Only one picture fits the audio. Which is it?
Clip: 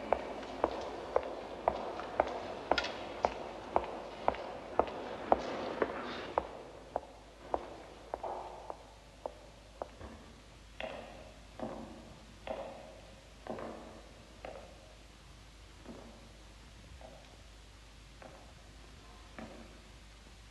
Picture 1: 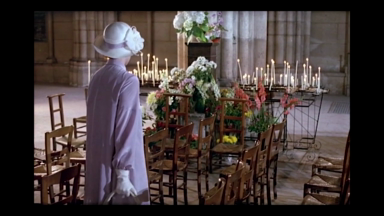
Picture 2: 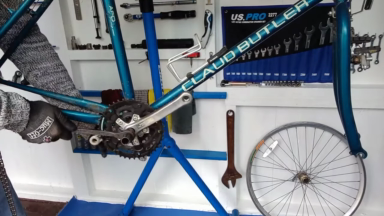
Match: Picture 1